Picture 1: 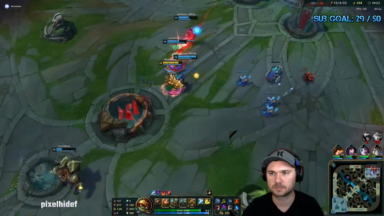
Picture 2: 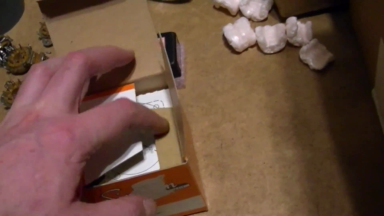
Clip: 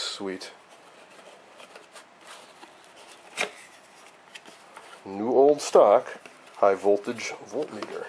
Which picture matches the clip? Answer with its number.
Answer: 2